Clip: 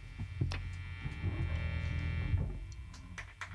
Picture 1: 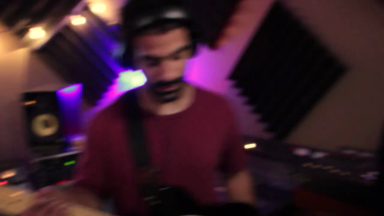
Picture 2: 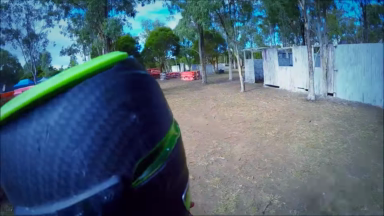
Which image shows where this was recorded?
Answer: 1